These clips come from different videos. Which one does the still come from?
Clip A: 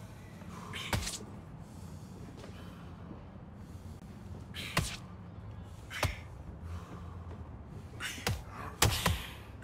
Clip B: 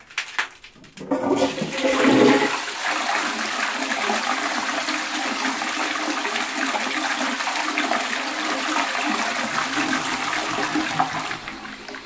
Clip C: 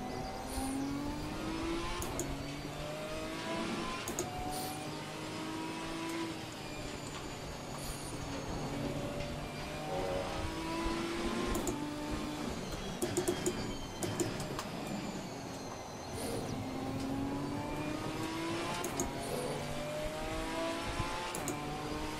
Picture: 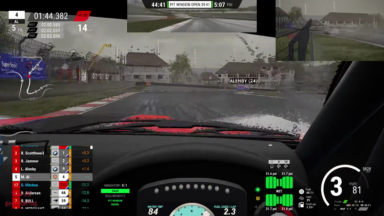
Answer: C